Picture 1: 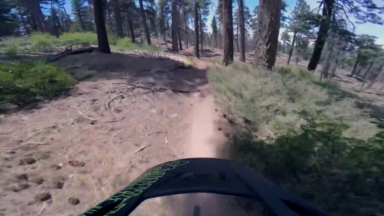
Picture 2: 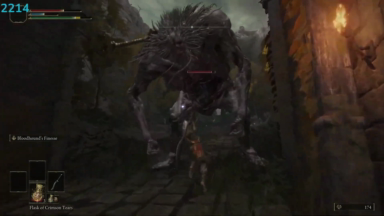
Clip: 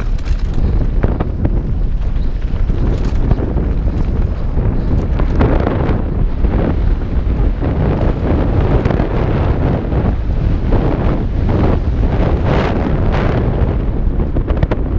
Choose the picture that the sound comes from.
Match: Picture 1